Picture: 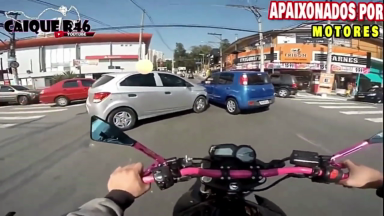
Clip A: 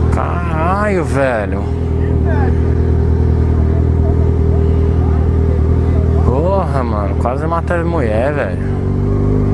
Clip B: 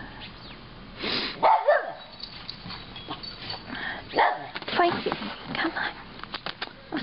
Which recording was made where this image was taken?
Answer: A